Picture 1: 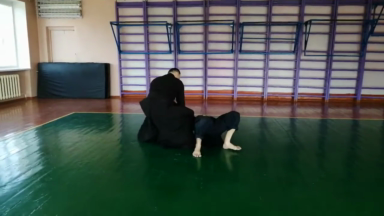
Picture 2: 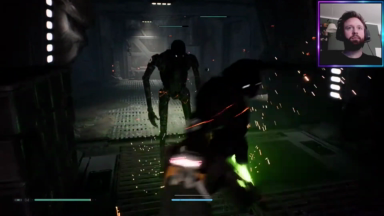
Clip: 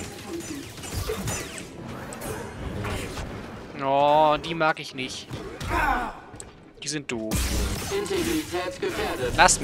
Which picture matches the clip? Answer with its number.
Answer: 2